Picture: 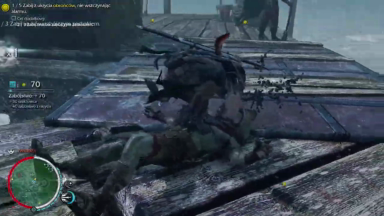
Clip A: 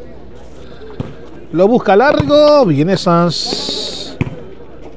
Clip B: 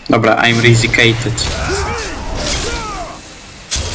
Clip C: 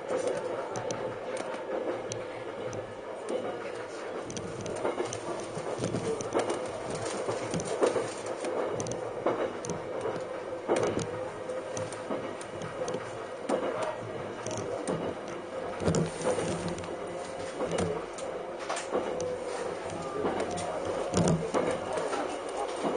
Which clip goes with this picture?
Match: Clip B